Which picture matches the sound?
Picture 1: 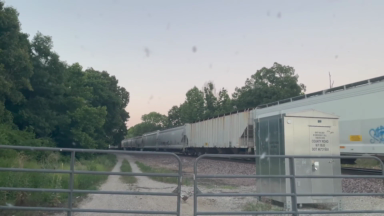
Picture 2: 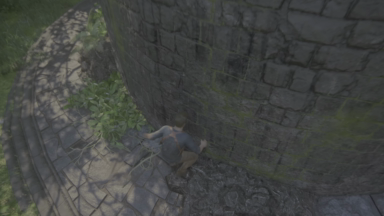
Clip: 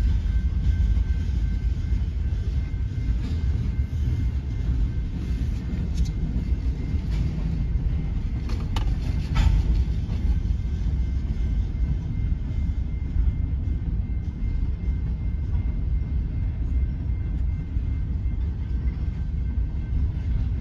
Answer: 1